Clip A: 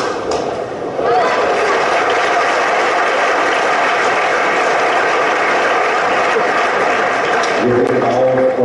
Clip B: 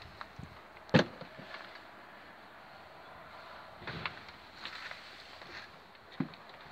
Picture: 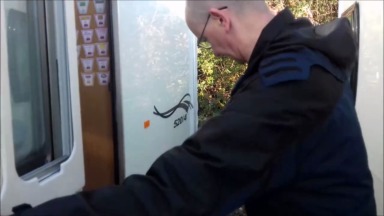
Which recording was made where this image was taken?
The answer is B